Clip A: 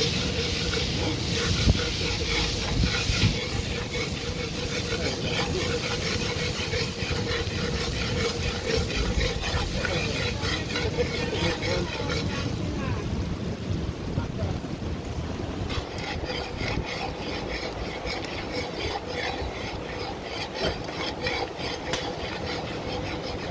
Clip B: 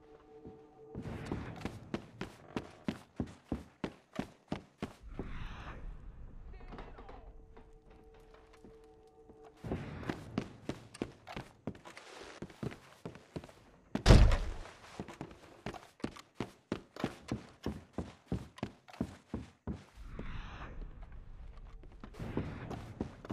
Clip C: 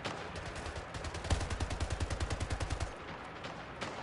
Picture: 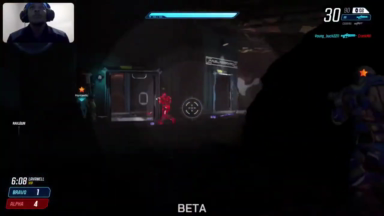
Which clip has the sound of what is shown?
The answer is C